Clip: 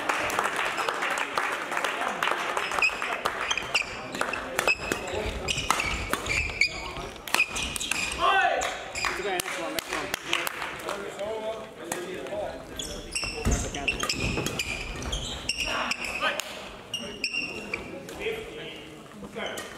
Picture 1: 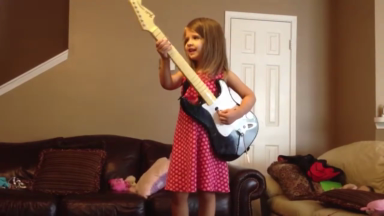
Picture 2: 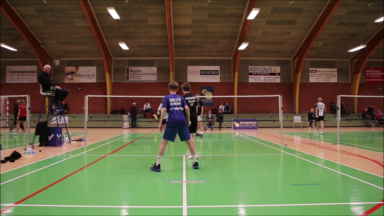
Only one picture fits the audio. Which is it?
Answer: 2